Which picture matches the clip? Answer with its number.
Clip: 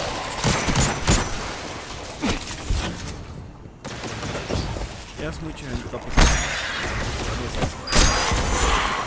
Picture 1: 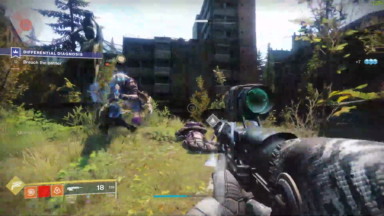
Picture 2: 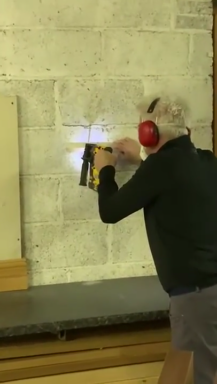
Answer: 1